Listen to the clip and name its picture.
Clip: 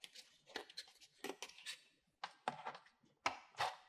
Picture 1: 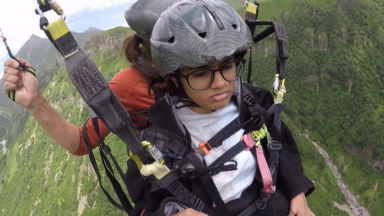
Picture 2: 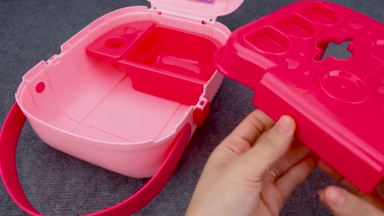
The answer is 2